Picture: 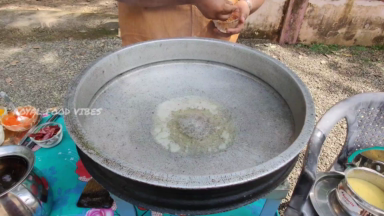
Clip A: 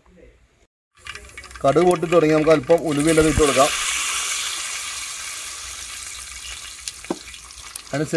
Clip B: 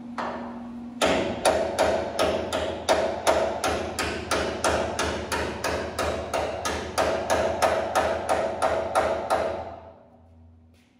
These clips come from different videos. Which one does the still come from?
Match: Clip A